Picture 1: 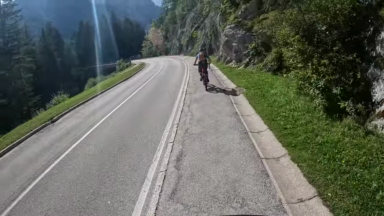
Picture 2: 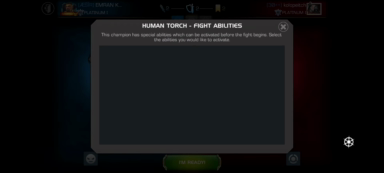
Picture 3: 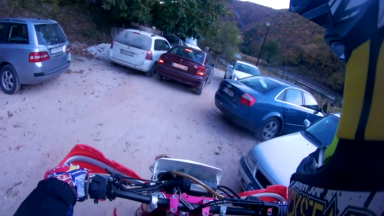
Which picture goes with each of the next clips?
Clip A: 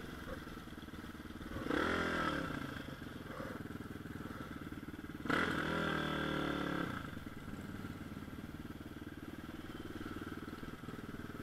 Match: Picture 3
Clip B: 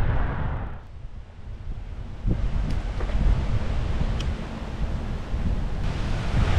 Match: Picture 1